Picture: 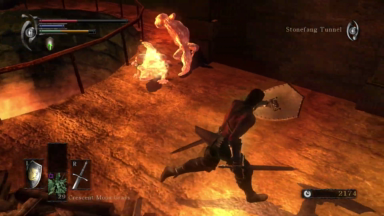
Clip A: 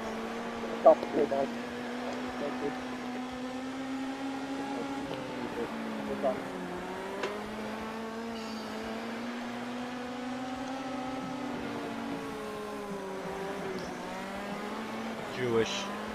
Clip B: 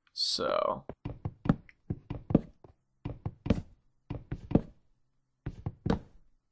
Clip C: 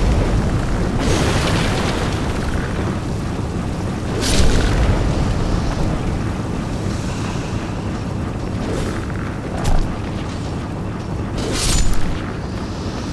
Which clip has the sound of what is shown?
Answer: C